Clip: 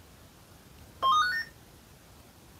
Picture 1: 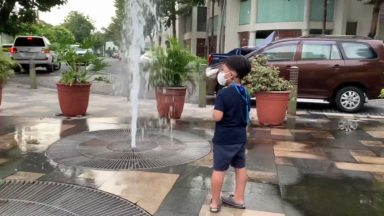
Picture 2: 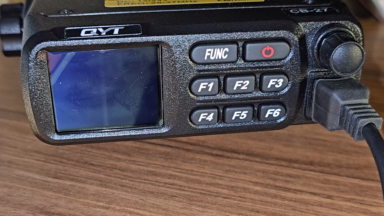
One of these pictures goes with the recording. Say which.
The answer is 2